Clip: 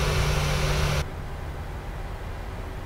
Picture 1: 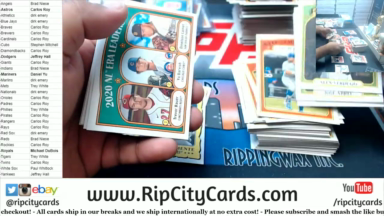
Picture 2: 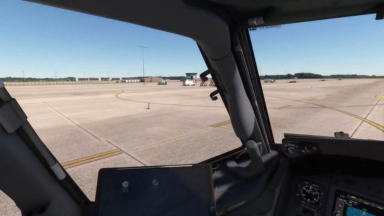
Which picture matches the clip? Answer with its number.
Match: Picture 2